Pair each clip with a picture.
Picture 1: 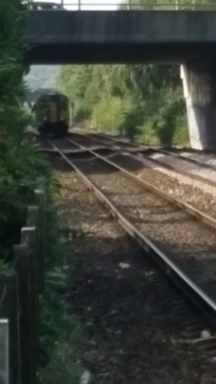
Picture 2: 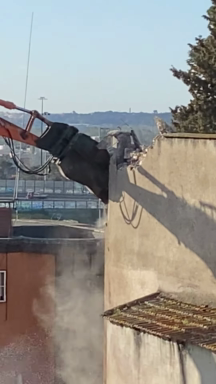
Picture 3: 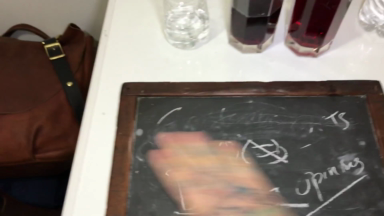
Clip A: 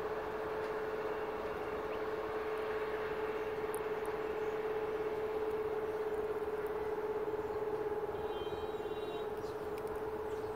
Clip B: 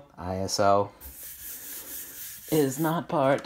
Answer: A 1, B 3